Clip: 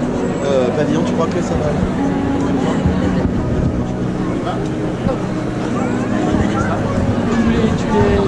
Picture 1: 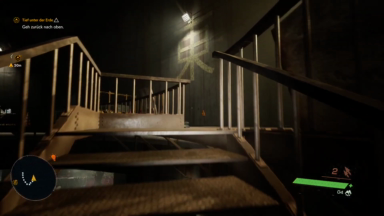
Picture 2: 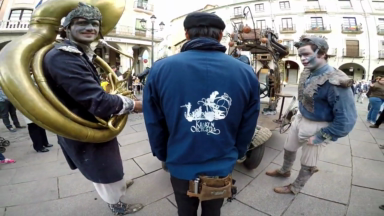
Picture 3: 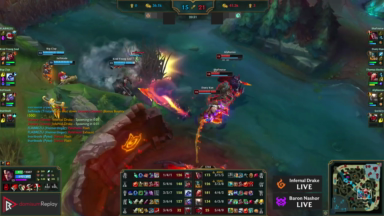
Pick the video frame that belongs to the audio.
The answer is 2